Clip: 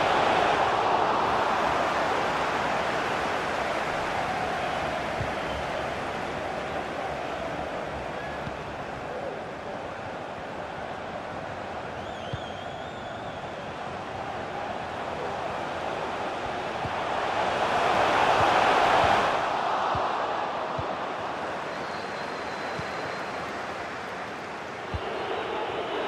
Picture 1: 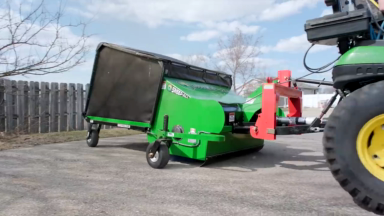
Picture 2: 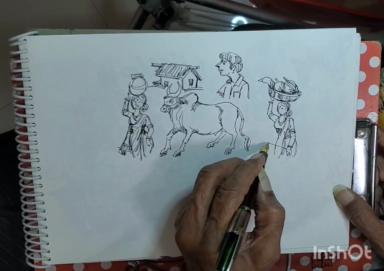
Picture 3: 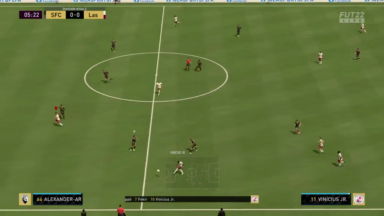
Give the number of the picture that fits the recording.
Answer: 3